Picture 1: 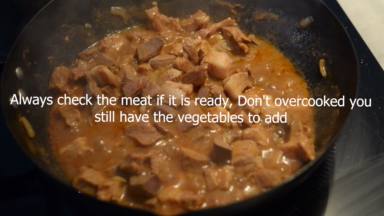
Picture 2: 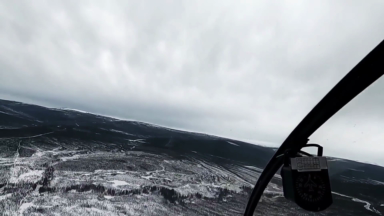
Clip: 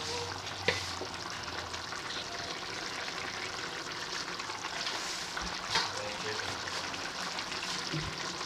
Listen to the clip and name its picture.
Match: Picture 1